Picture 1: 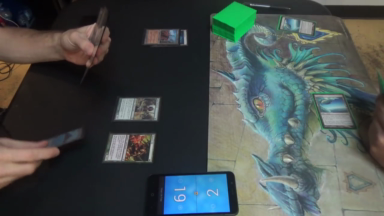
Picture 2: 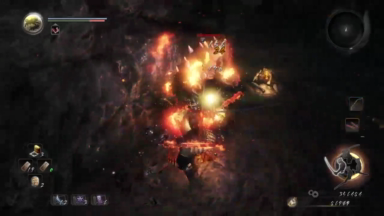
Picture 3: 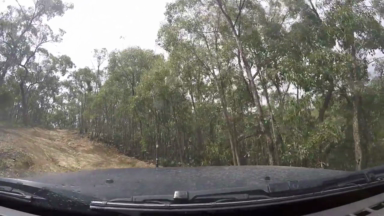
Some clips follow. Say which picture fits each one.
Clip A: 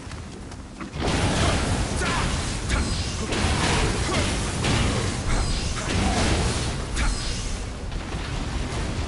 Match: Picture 2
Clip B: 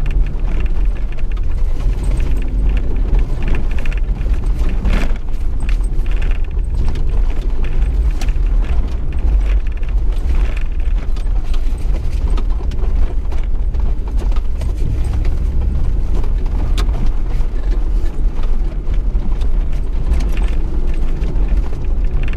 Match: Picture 3